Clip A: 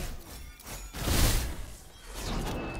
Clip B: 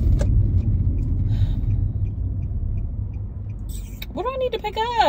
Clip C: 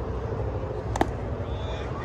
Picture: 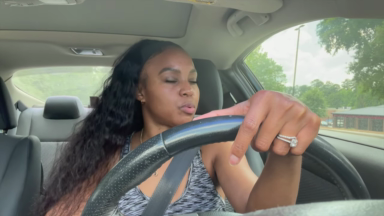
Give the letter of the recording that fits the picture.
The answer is B